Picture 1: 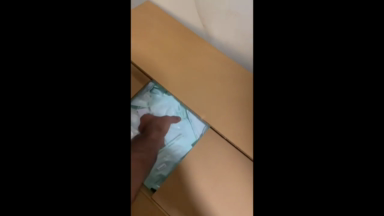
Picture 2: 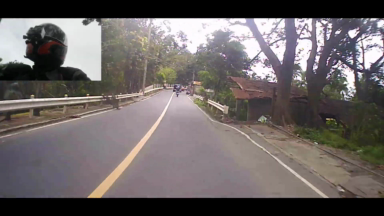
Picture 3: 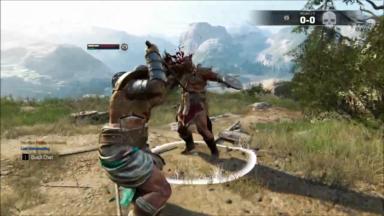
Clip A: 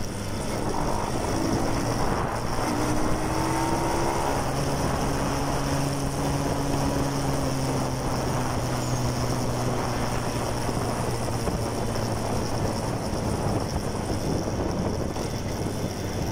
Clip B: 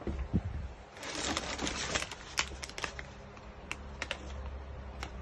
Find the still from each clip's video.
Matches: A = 2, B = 1